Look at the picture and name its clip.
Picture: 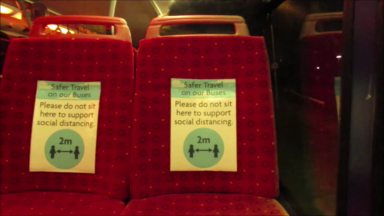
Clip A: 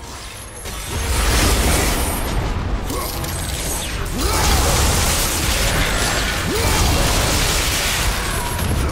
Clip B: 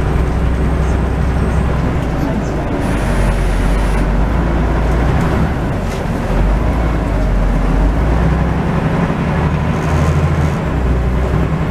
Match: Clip B